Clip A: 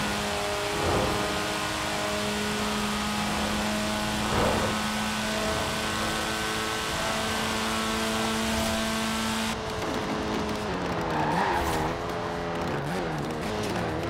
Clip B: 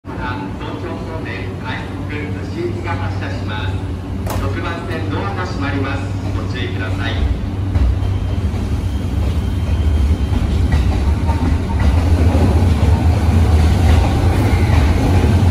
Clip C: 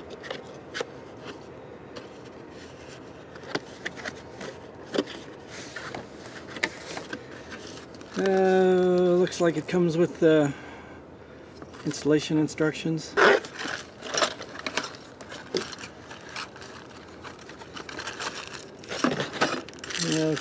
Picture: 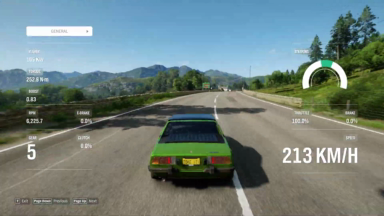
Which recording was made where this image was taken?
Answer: A